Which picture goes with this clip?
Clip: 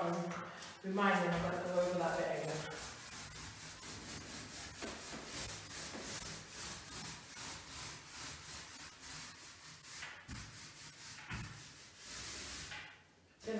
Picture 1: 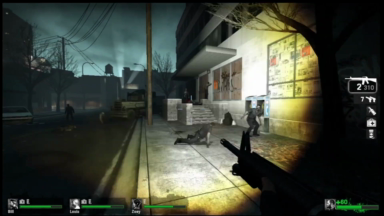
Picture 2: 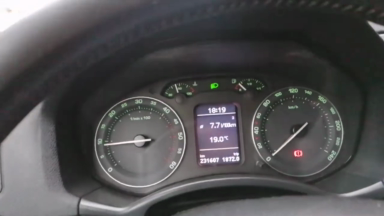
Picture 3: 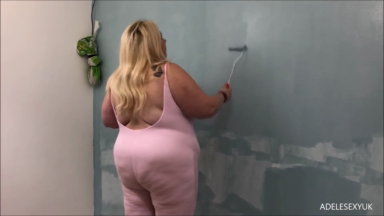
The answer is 3